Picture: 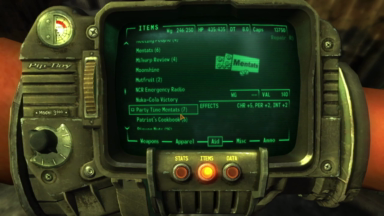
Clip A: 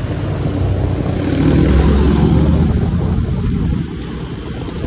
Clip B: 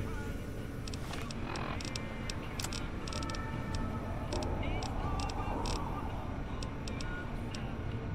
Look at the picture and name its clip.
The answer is B